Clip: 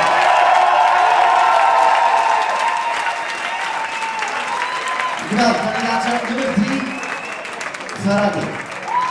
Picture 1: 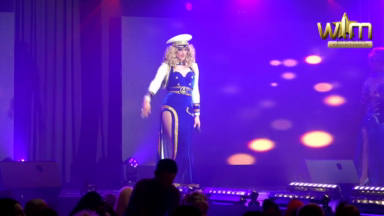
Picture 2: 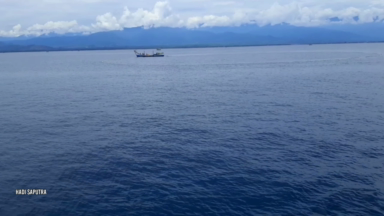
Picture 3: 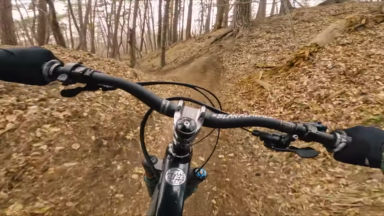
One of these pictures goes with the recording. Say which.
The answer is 1